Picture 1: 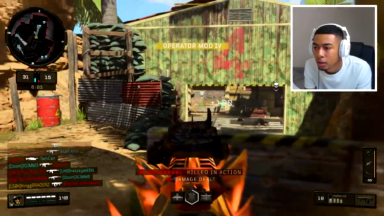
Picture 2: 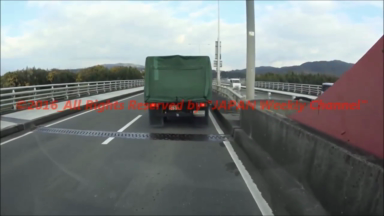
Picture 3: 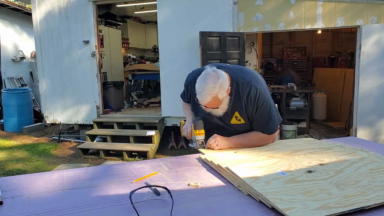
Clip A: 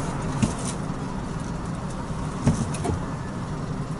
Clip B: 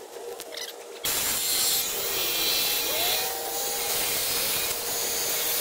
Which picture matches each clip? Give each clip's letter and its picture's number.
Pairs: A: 2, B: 3